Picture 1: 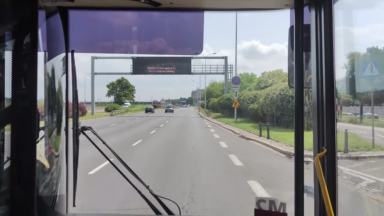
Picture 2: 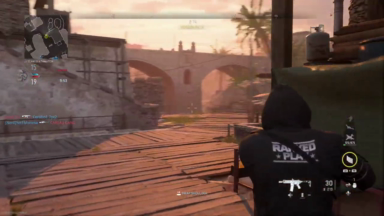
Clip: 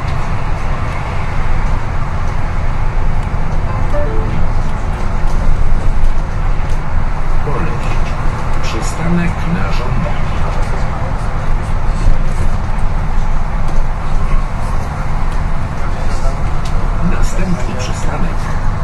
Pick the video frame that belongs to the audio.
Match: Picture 1